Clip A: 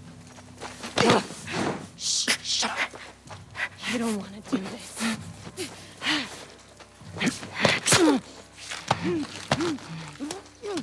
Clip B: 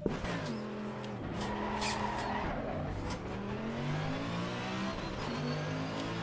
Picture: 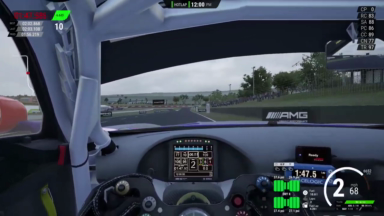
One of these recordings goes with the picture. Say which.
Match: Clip B